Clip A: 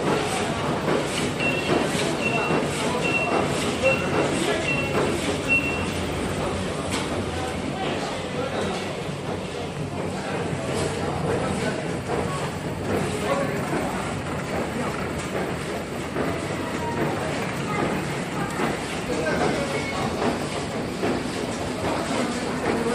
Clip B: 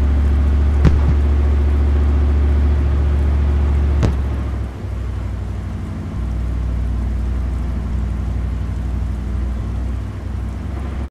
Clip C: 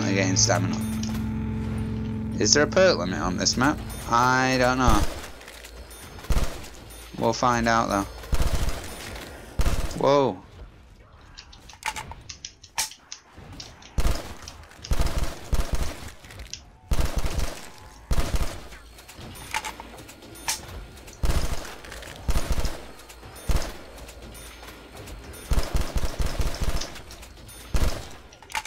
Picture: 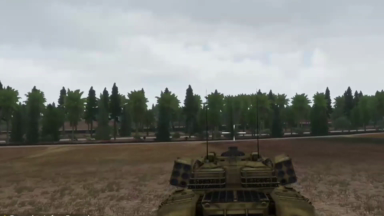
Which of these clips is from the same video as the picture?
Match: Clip B